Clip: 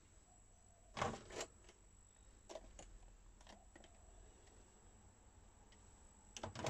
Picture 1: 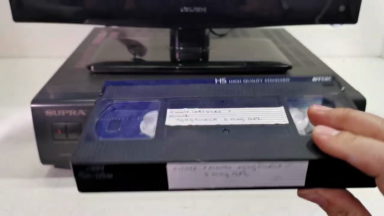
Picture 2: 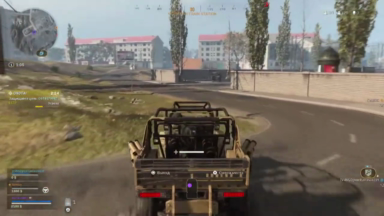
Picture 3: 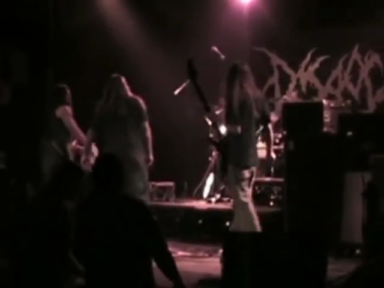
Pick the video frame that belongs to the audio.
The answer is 1